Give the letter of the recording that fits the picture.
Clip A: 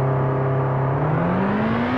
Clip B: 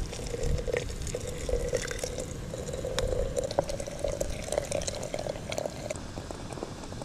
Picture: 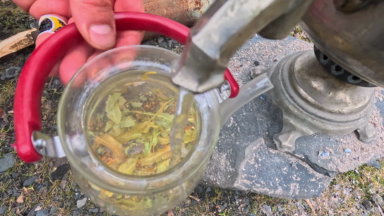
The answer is B